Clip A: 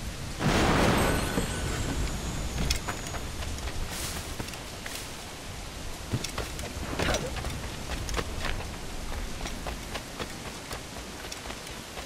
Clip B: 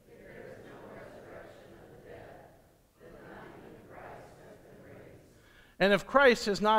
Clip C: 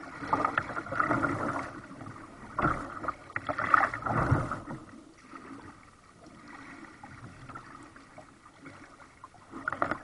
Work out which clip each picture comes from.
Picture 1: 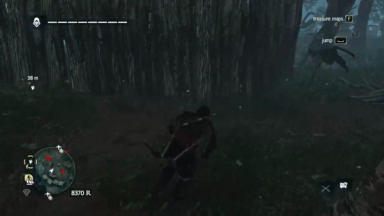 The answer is A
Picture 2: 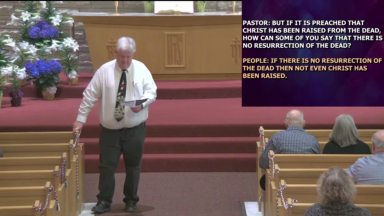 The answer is B